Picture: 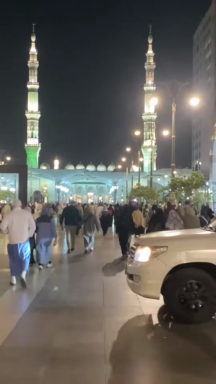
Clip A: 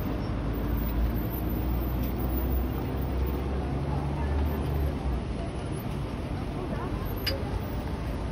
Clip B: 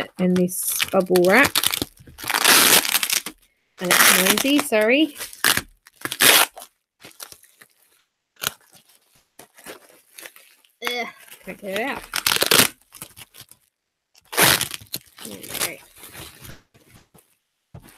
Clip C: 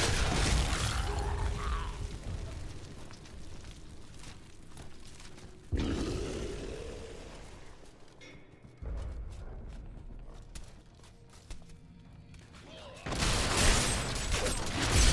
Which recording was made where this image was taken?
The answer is A